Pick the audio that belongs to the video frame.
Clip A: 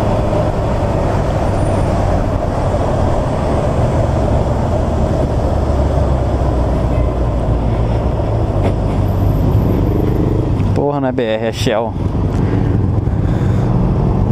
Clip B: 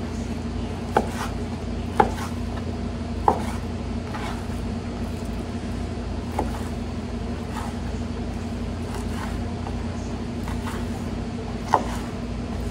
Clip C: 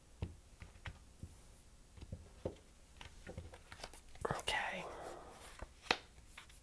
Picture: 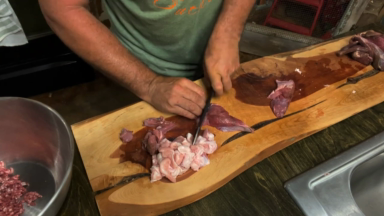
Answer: B